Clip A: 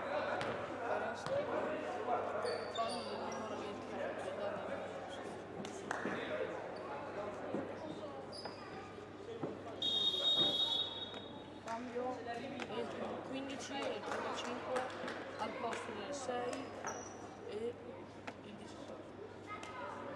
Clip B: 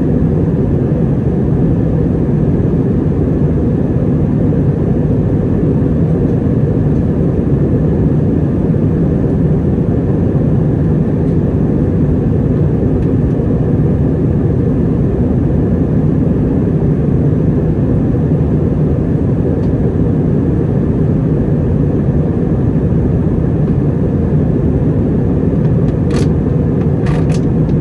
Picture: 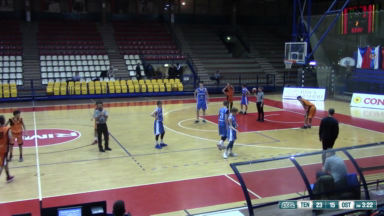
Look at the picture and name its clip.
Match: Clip A